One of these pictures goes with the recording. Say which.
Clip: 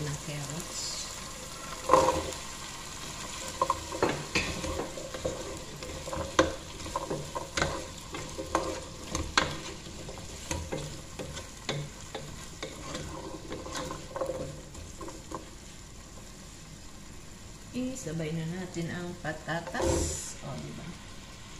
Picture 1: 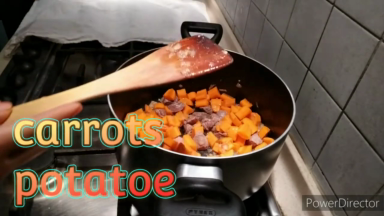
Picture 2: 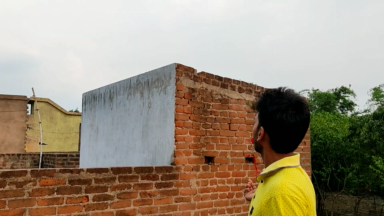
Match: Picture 1